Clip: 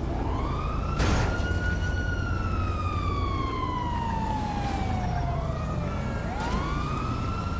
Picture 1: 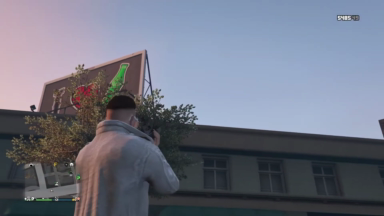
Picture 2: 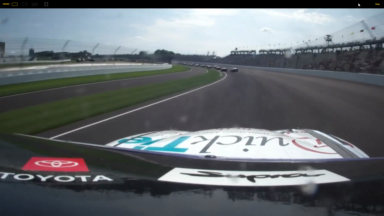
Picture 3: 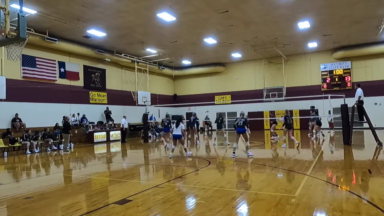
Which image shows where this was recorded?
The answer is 1